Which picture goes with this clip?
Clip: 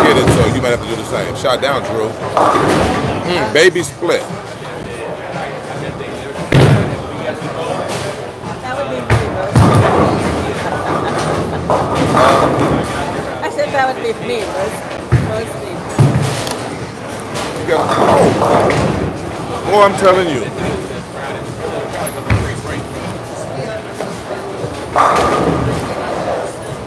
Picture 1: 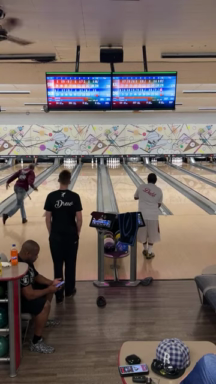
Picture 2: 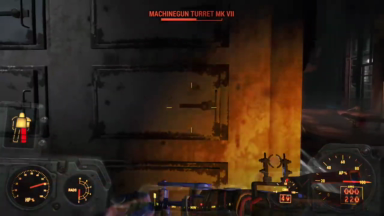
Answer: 1